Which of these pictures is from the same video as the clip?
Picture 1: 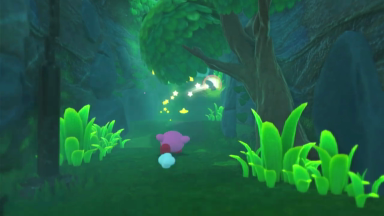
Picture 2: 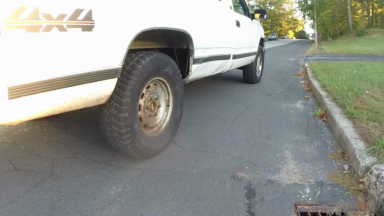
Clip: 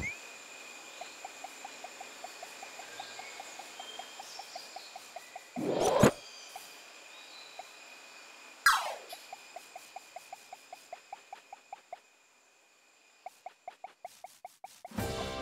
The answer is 1